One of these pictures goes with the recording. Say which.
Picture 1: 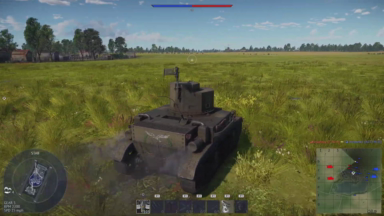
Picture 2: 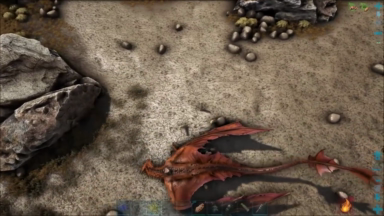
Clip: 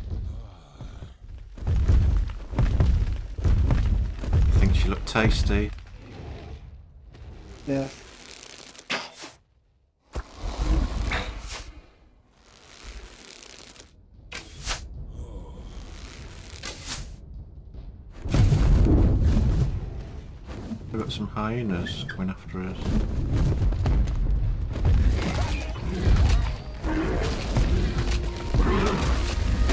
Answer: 2